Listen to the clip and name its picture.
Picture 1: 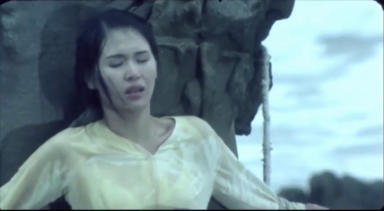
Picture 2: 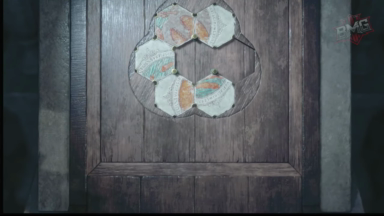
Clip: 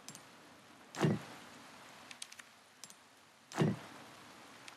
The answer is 2